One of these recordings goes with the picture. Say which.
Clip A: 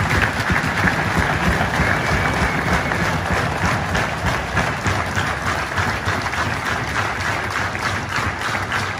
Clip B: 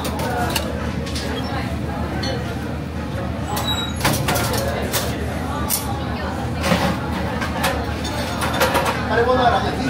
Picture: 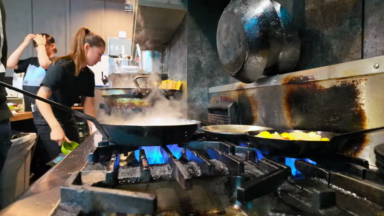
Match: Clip B